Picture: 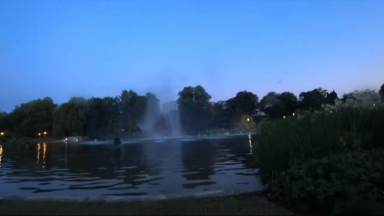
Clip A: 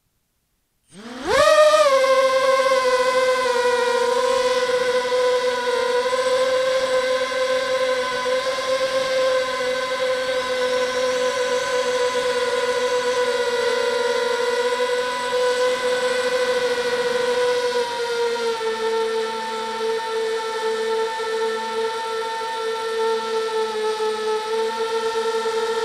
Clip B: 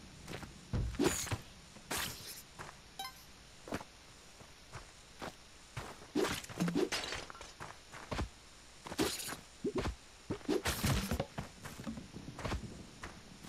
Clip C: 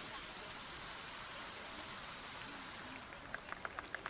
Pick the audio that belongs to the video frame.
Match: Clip C